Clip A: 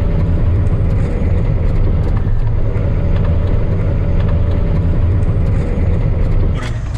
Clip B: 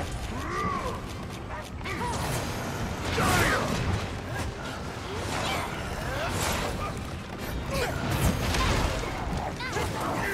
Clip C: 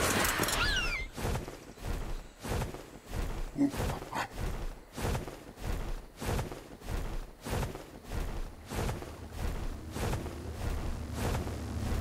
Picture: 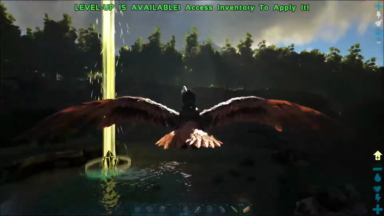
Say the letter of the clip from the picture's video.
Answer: C